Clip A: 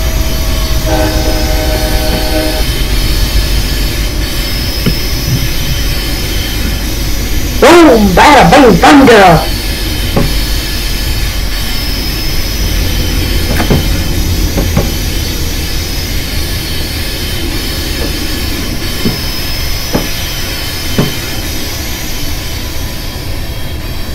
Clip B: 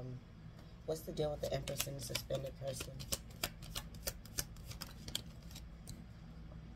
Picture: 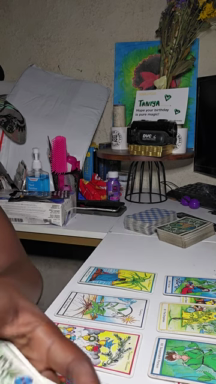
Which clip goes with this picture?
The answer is B